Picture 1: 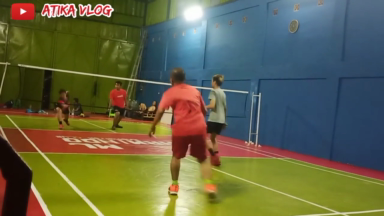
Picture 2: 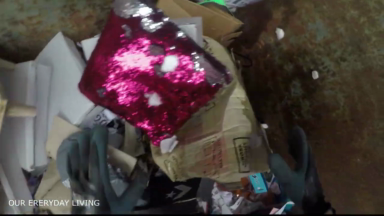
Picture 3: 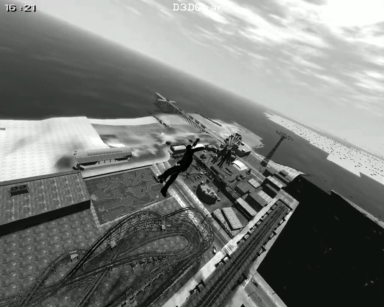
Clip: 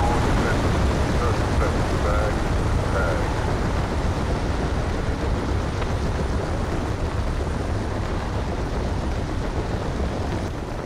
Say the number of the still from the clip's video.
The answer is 3